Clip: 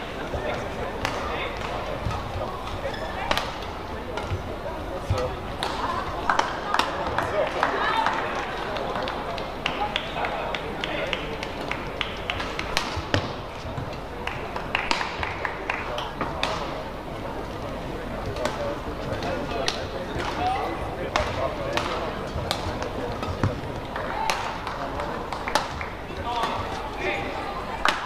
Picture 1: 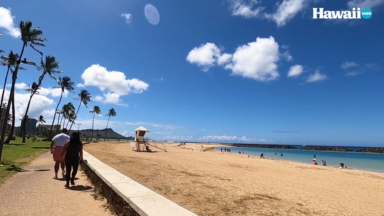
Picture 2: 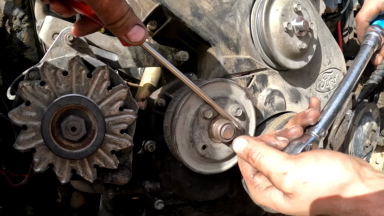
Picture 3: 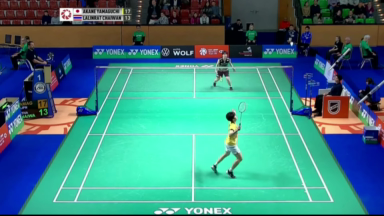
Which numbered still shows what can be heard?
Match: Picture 3